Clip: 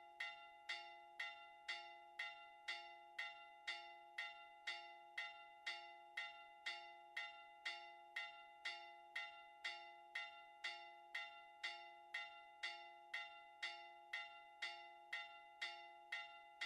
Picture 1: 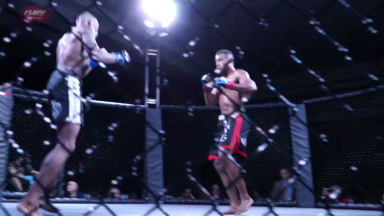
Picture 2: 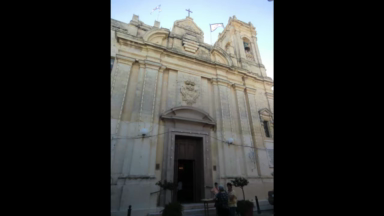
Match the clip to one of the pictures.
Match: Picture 2